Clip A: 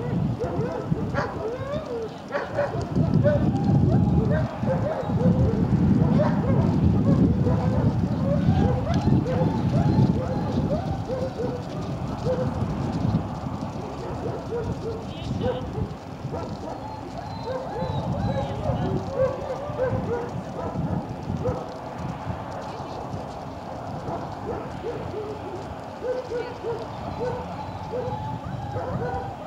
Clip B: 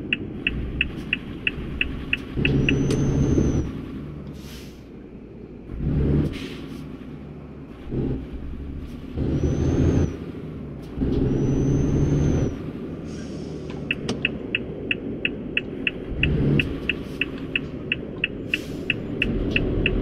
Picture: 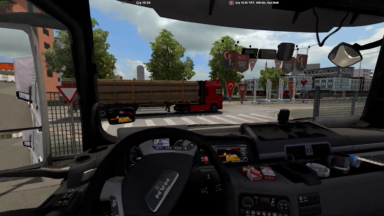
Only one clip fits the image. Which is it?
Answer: B